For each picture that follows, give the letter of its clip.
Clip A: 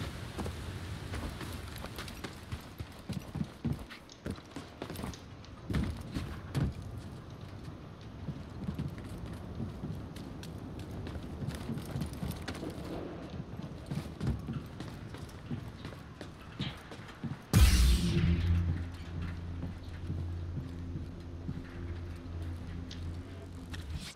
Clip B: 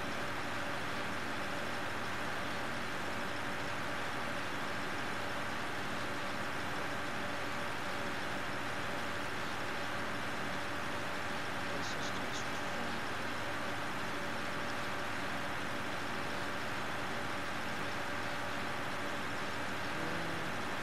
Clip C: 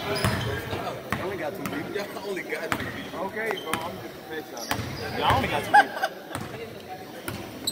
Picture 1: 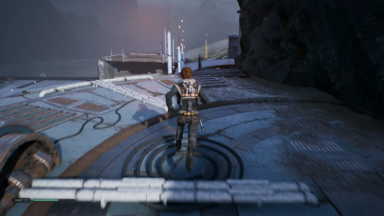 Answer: A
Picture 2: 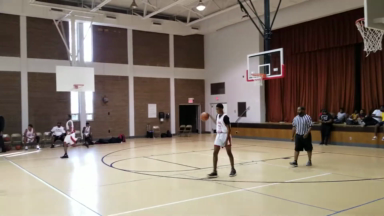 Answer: C